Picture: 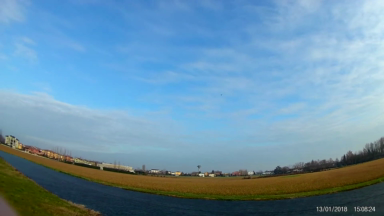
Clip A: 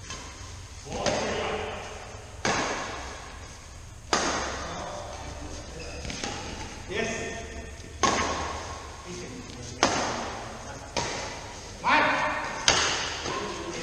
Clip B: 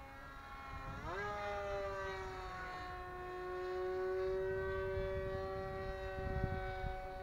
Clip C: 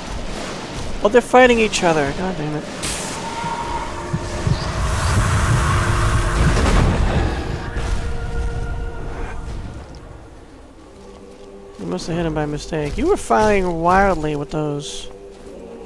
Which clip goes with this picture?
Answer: B